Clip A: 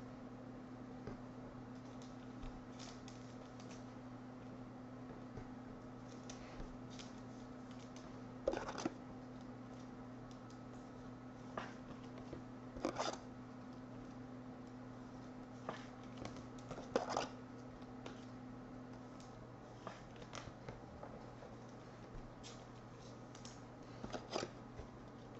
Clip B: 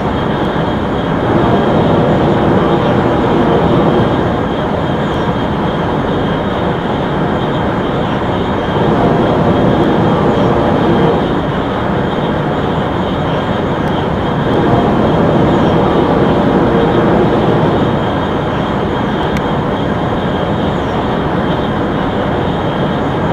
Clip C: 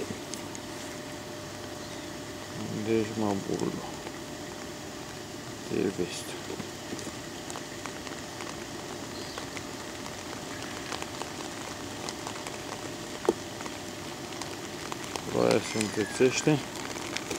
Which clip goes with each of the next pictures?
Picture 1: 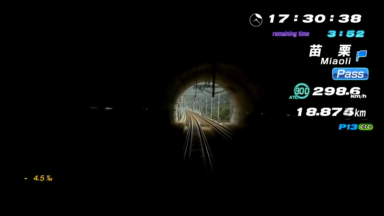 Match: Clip B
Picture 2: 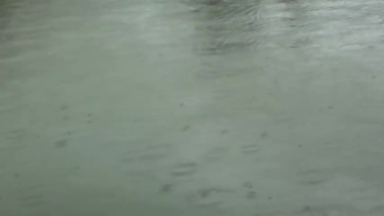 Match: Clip C